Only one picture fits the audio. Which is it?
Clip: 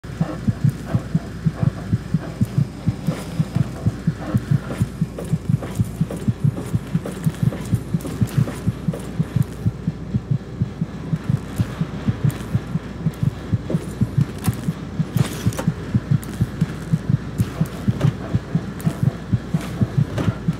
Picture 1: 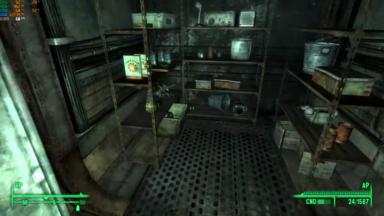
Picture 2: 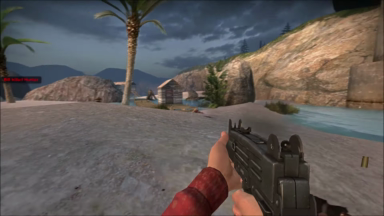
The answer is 1